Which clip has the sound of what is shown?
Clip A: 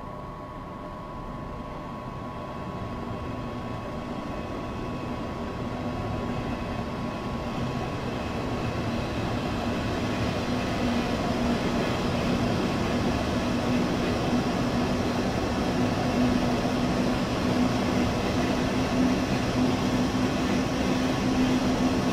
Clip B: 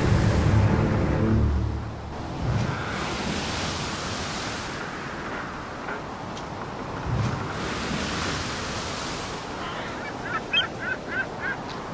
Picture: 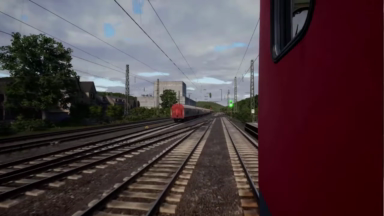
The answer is A